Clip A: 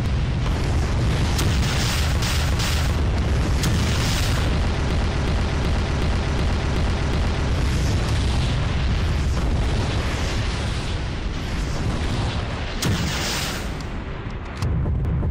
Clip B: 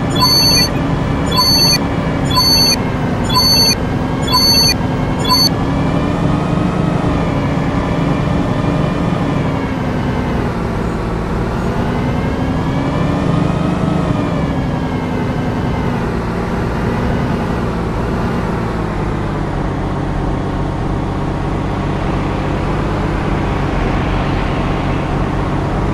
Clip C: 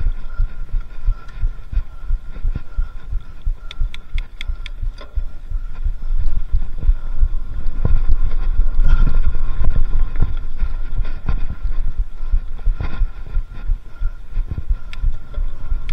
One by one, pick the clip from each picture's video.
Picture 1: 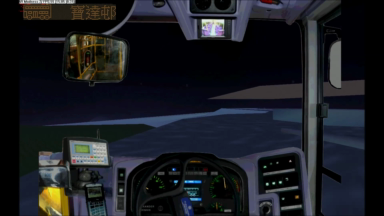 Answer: B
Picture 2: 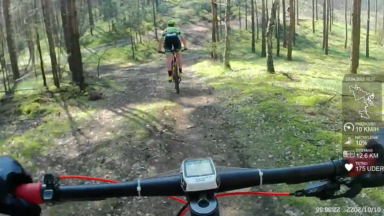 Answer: C